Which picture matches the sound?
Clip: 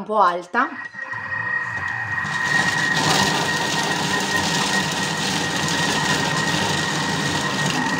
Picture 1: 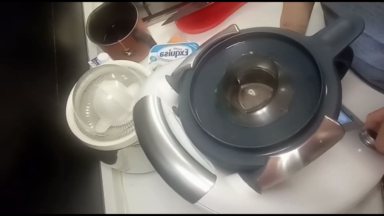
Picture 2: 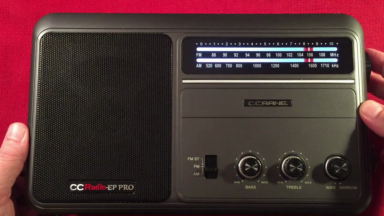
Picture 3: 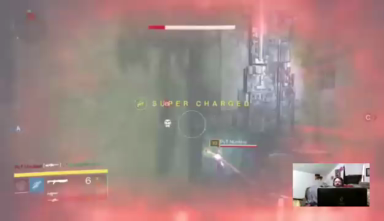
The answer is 1